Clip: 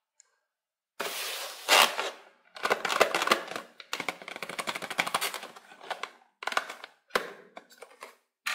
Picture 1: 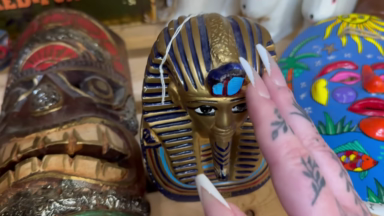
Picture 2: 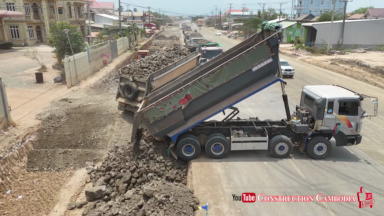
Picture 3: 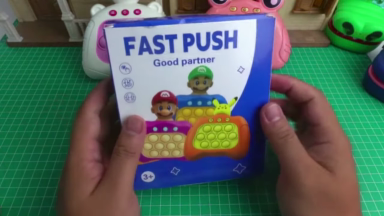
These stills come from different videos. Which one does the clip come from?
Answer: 3